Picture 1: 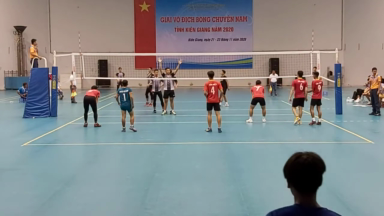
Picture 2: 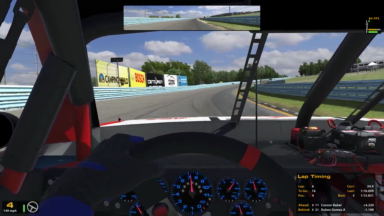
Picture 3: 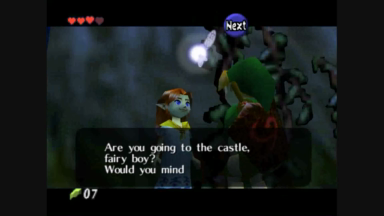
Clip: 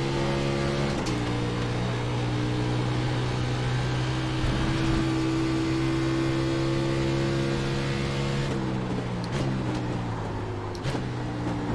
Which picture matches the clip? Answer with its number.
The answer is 2